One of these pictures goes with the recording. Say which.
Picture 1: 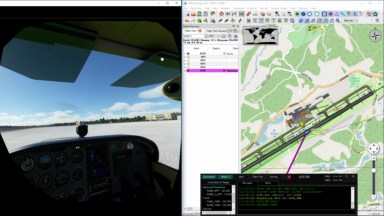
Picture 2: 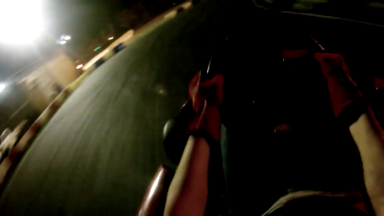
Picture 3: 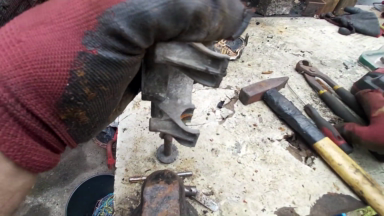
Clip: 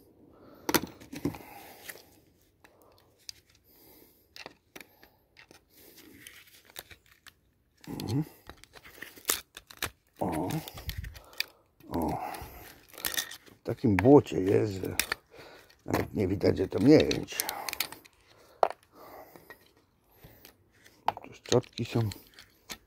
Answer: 3